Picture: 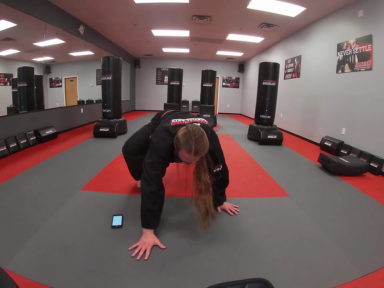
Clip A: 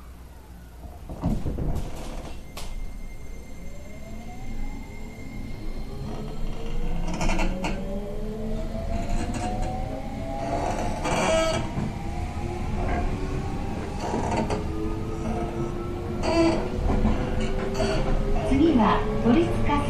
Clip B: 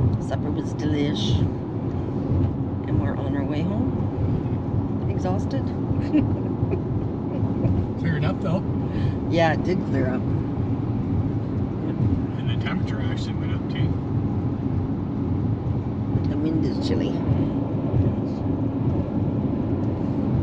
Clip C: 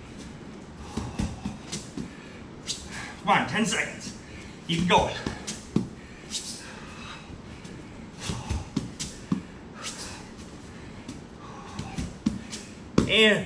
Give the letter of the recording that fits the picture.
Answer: C